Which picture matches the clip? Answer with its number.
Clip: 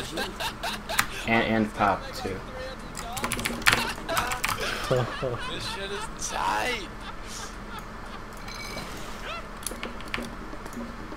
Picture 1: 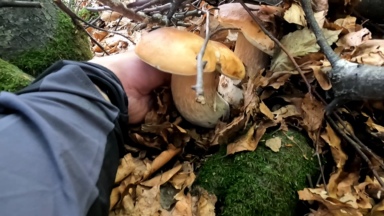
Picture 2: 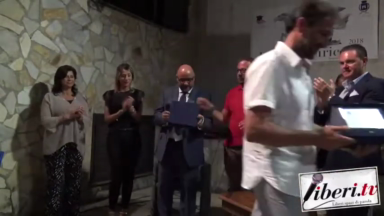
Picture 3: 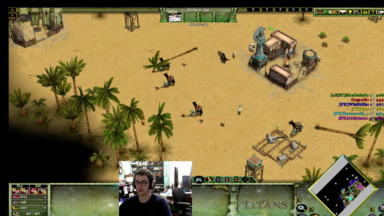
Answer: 3